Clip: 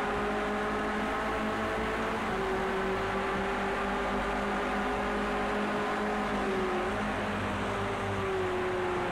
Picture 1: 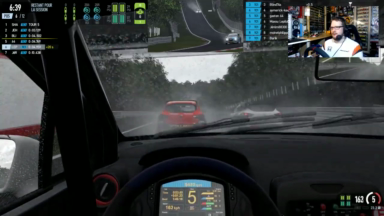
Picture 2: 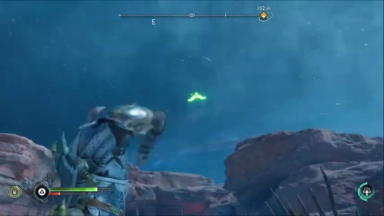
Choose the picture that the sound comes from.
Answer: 1